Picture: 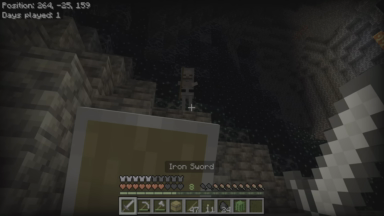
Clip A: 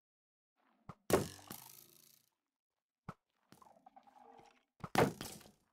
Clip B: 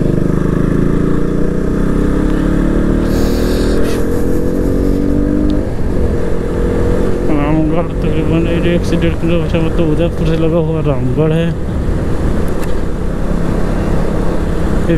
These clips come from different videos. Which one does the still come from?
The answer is A